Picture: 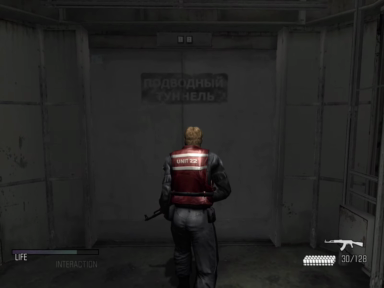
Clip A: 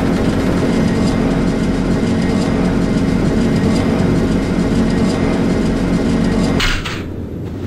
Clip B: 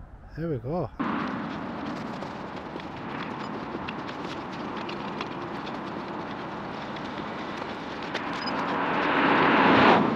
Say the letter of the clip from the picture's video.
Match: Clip A